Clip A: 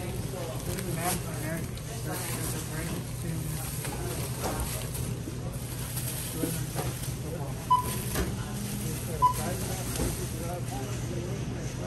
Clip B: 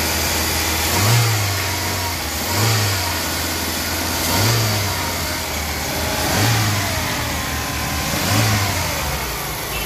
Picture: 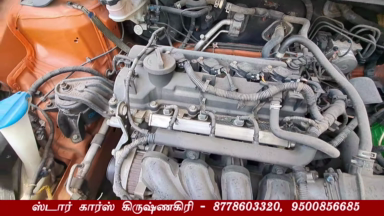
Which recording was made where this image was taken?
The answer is B